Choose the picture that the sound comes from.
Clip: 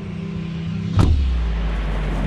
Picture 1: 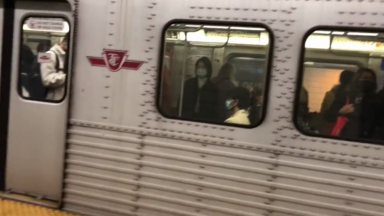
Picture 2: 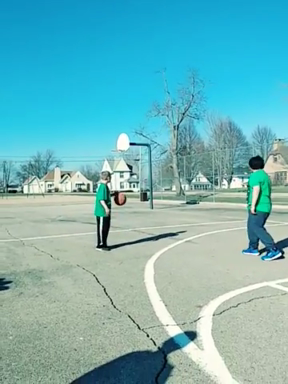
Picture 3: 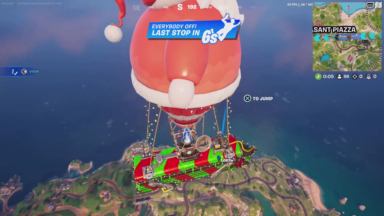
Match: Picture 3